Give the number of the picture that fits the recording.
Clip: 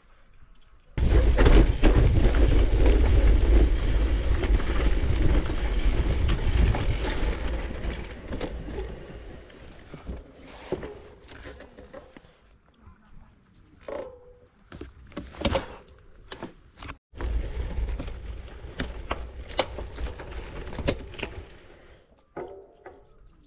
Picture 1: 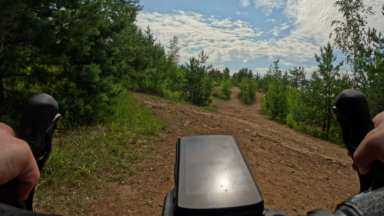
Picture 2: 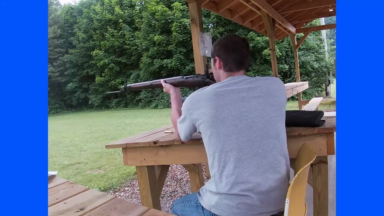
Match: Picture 1